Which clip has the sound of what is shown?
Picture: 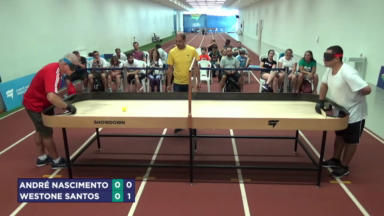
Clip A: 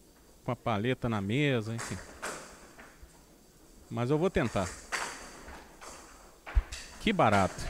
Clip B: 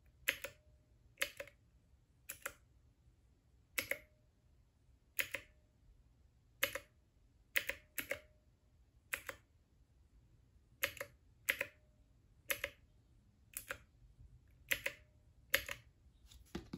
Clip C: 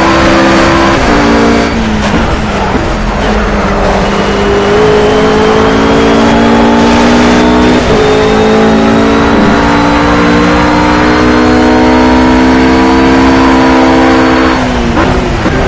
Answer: A